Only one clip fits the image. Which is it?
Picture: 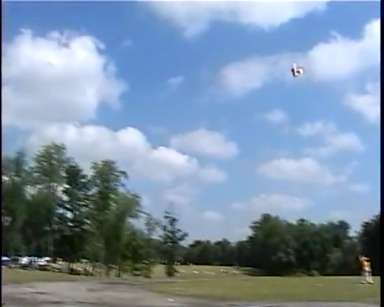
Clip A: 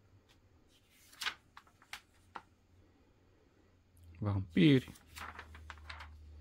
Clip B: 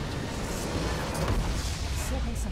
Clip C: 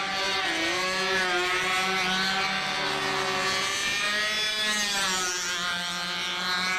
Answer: C